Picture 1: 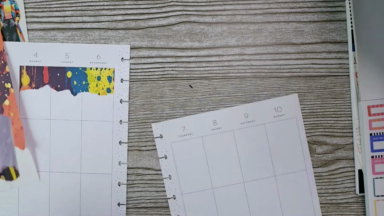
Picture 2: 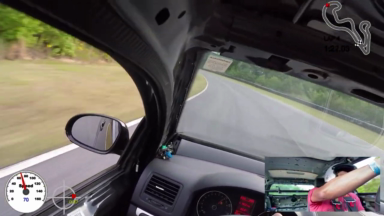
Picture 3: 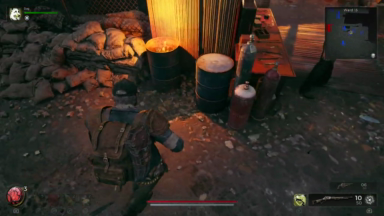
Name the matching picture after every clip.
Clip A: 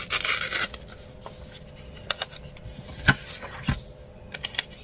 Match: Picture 1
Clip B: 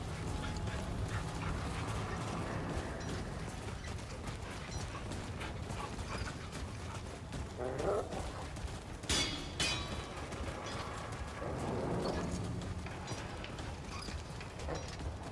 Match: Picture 3